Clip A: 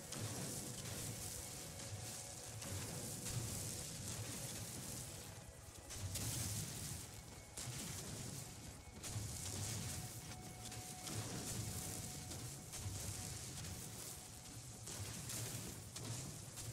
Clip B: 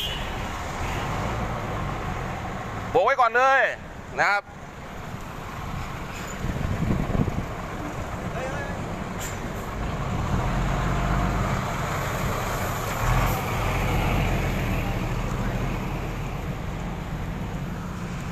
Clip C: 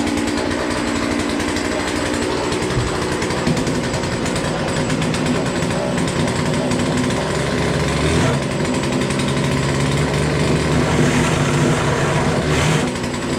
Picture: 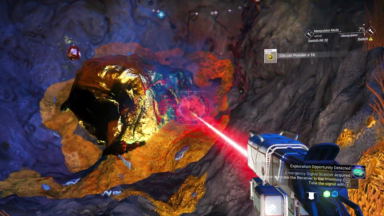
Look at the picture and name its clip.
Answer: A